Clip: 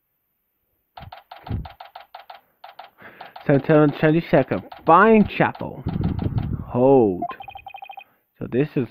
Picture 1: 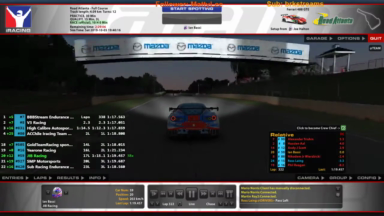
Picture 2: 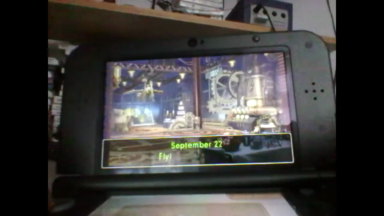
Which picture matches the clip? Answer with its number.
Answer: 2